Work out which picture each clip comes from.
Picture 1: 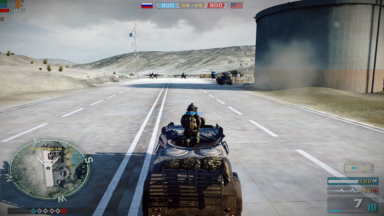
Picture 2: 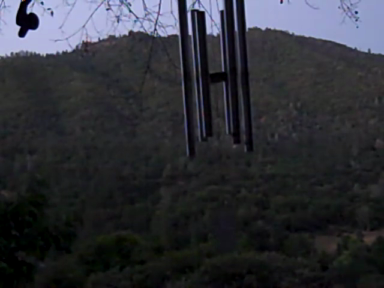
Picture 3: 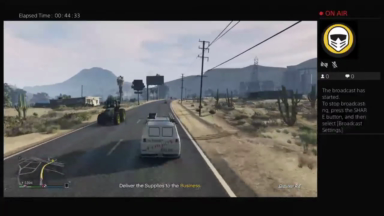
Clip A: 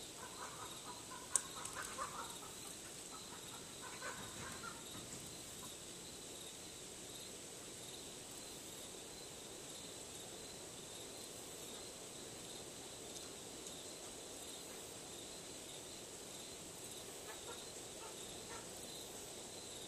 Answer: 2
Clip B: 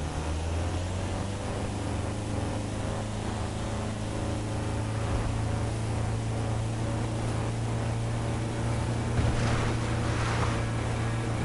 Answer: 3